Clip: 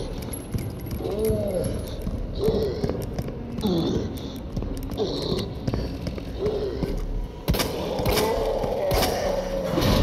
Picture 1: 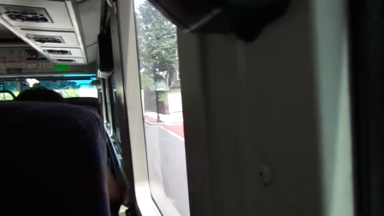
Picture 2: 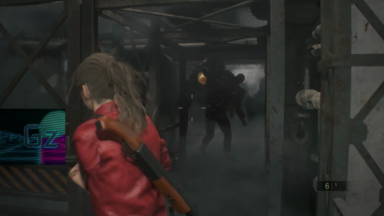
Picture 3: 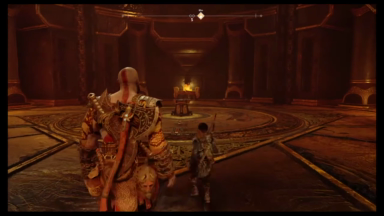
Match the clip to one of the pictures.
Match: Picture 2